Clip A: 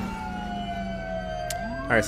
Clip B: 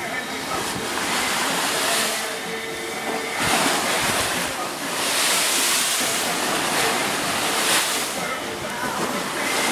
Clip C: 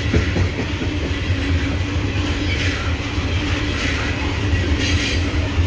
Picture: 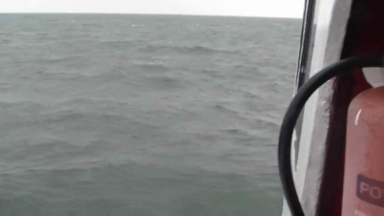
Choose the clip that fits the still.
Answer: B